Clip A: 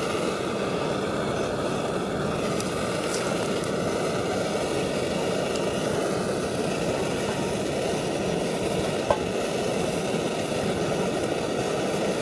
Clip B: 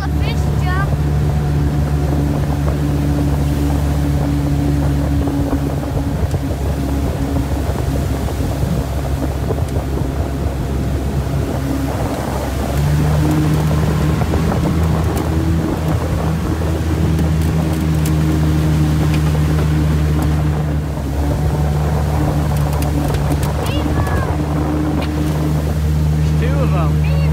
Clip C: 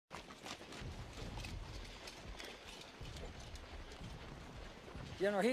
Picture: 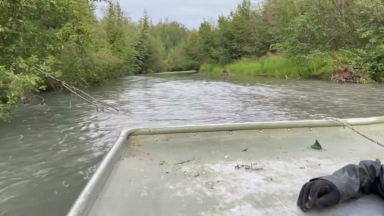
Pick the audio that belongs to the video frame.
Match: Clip B